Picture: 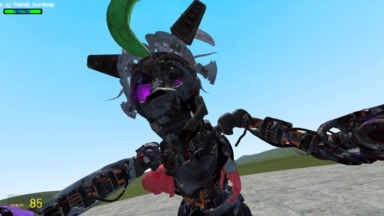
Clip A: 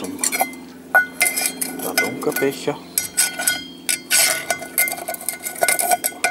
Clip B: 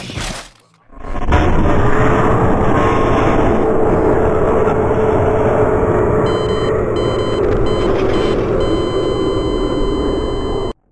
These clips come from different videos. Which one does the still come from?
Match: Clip B